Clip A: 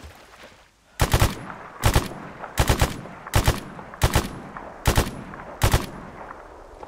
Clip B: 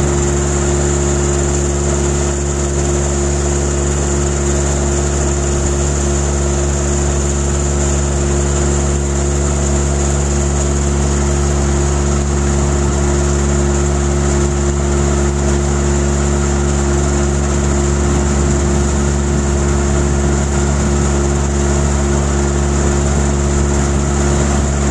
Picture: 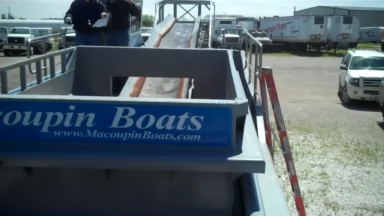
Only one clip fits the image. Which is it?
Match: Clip B